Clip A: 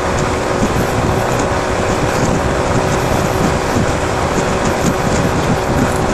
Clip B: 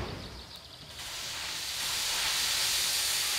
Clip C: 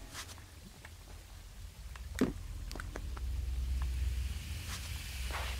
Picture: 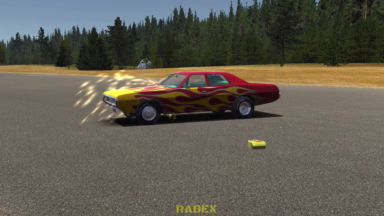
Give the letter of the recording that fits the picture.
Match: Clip B